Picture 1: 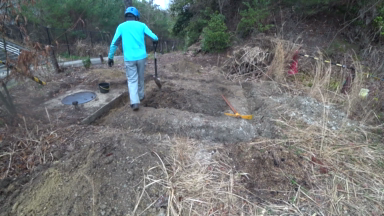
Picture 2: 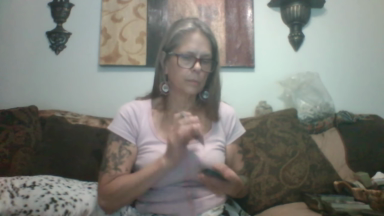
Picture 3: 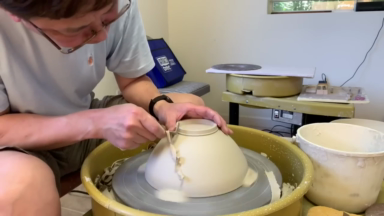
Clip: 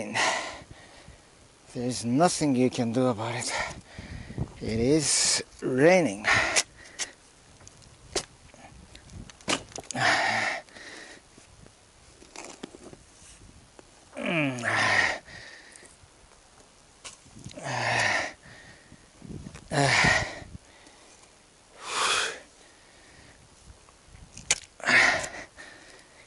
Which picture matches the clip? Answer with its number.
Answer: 1